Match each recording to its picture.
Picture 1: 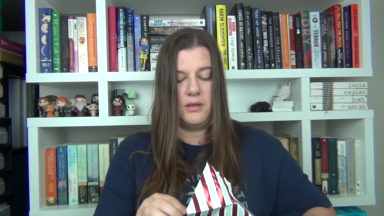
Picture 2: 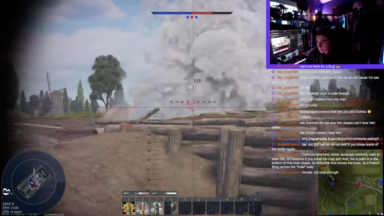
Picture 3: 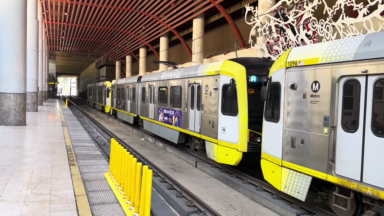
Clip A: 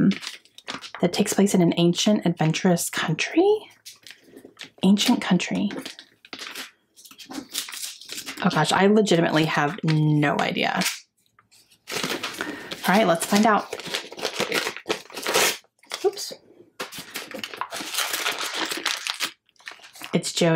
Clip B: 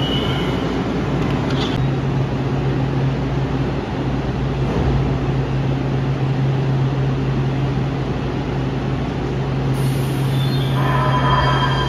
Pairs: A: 1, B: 3